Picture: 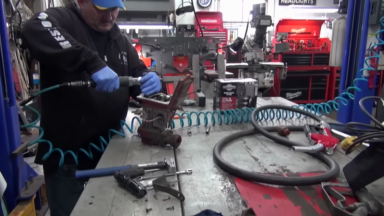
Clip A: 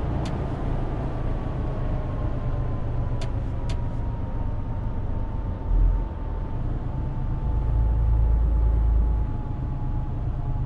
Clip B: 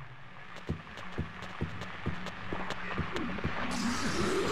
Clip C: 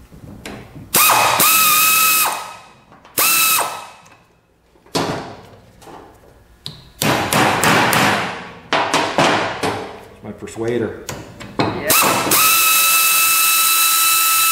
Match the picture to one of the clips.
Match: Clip C